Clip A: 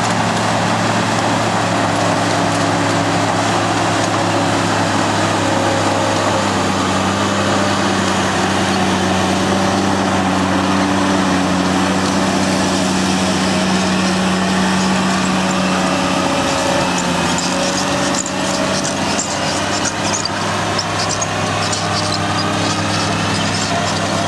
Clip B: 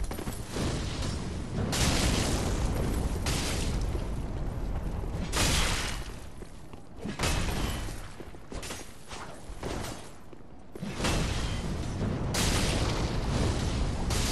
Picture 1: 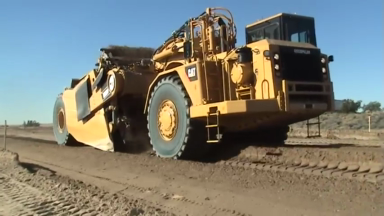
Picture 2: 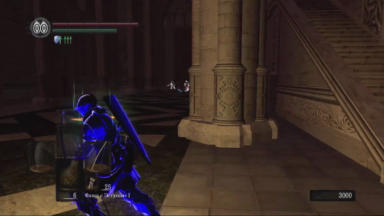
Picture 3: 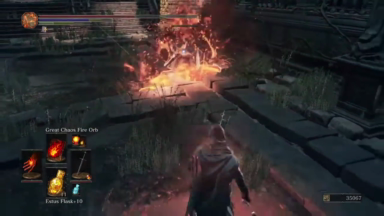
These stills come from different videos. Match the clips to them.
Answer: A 1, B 3